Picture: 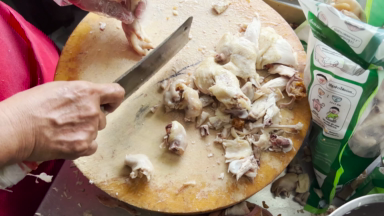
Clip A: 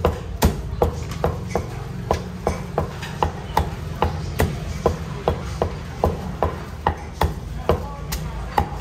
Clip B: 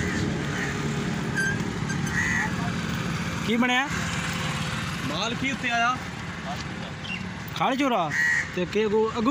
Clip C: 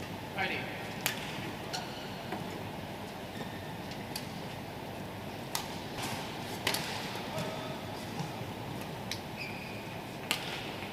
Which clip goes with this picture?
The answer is A